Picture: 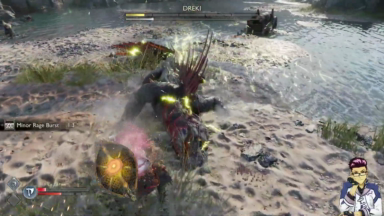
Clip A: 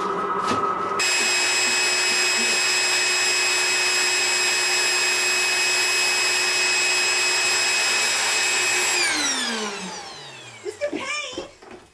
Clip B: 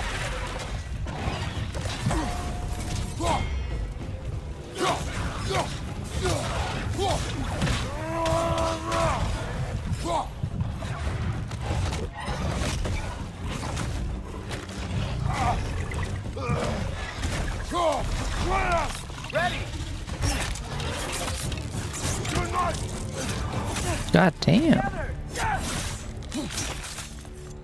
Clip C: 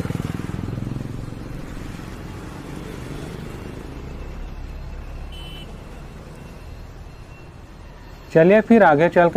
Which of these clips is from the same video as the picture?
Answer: B